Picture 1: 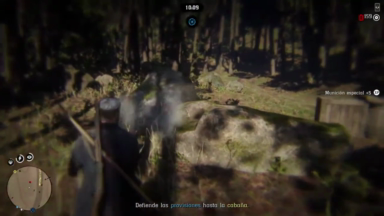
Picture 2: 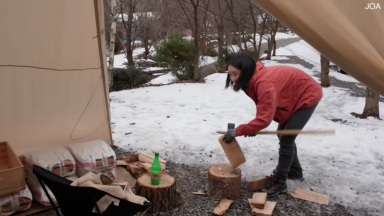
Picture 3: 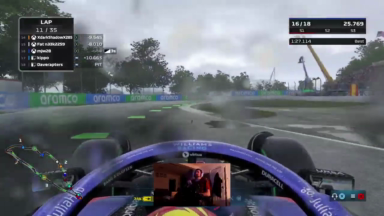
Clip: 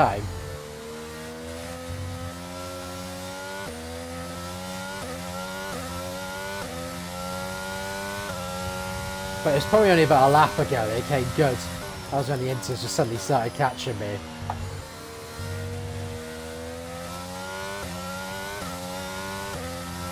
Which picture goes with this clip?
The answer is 3